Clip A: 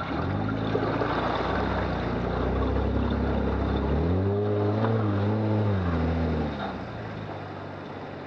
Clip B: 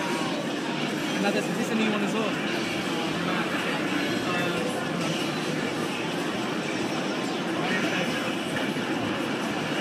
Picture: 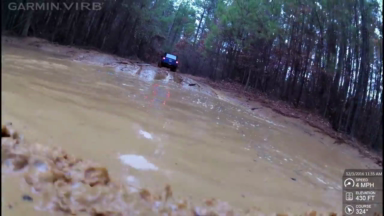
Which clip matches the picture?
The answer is A